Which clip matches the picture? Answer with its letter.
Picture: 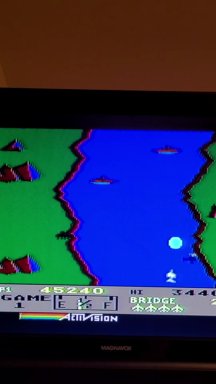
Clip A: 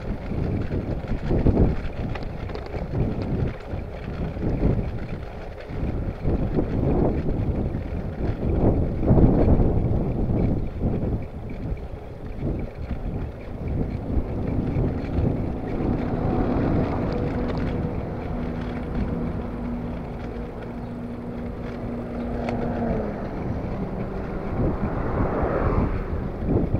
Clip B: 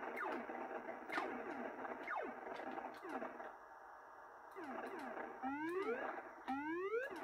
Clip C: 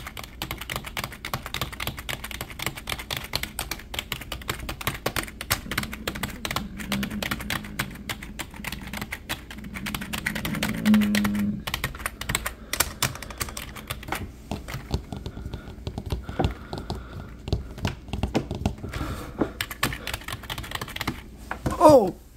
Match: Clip B